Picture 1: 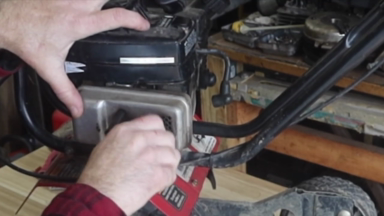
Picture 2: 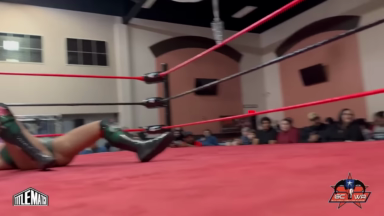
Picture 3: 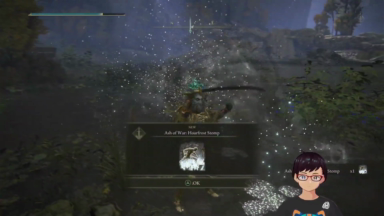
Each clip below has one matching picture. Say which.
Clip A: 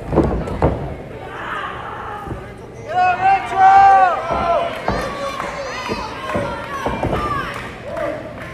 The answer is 2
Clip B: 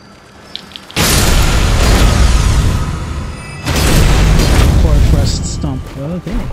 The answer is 3